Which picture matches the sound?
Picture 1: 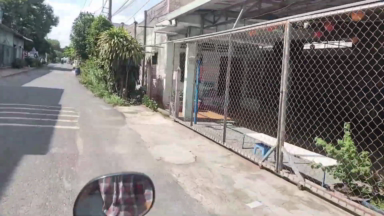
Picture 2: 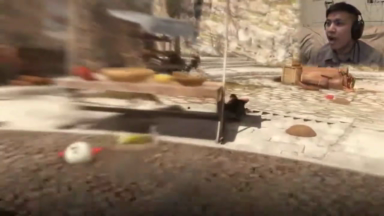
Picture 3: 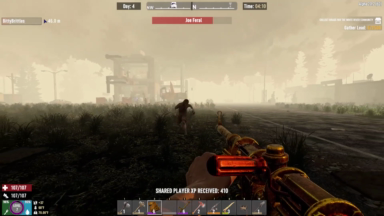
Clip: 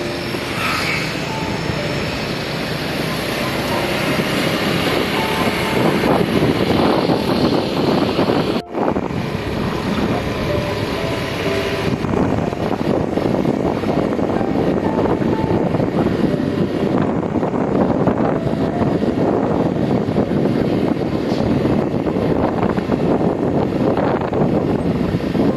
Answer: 1